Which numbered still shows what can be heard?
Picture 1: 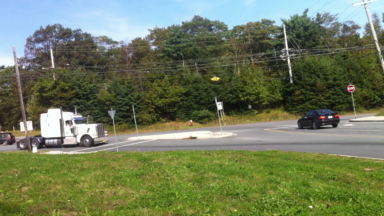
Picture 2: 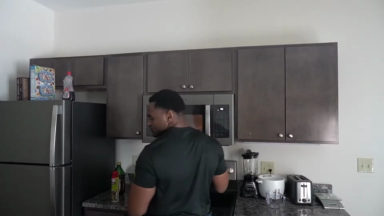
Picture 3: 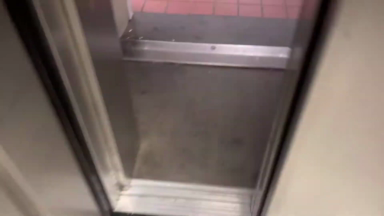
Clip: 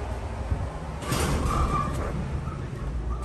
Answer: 3